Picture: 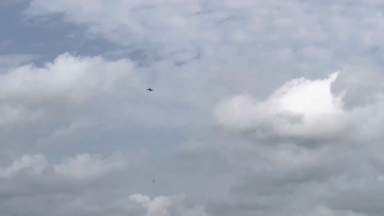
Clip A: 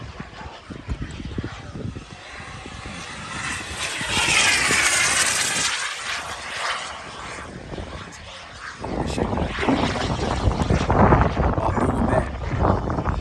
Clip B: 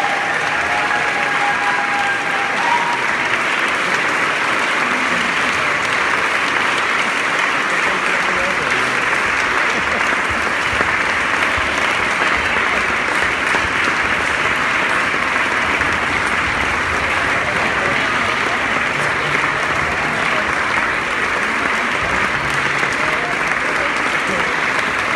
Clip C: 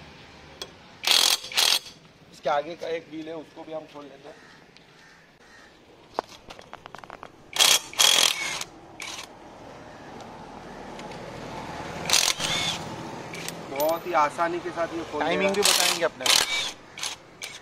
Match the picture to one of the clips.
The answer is A